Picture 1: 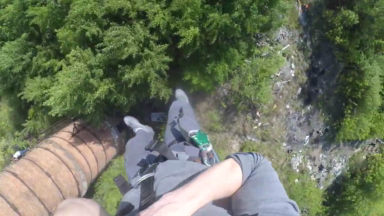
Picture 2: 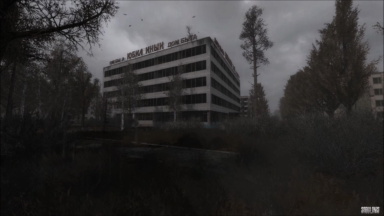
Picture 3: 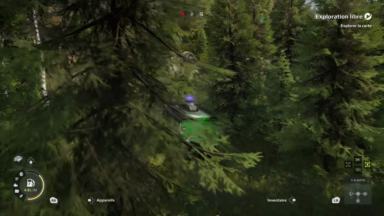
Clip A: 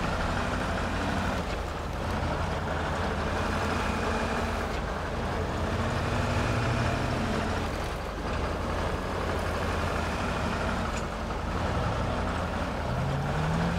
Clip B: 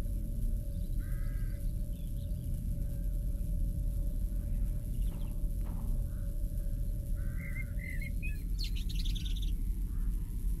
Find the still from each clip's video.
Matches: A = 3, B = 2